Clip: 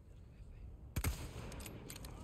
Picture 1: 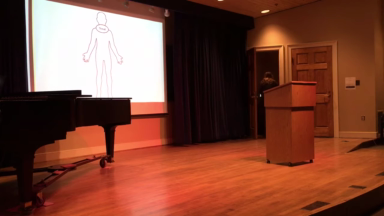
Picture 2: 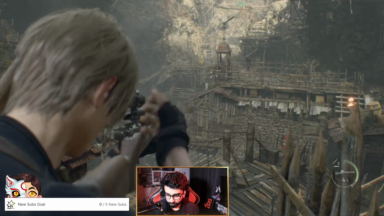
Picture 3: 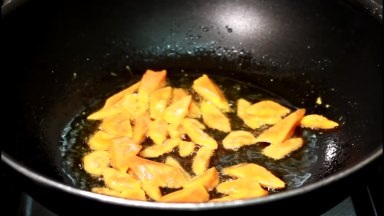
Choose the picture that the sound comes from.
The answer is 2